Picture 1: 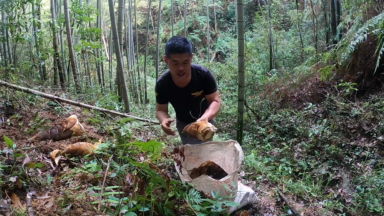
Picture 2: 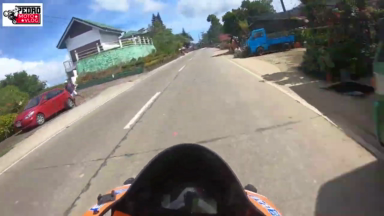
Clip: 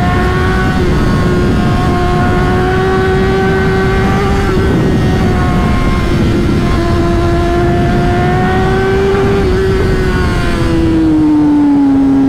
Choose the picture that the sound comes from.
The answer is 2